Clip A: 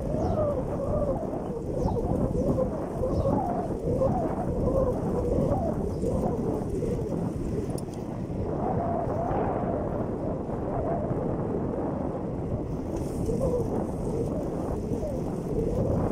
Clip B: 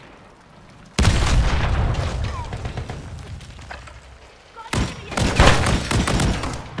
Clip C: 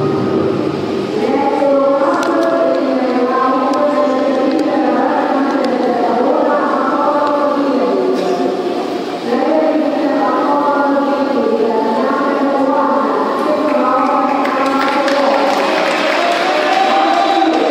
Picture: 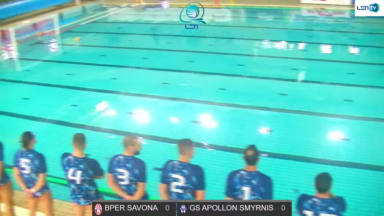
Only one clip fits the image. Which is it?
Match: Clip C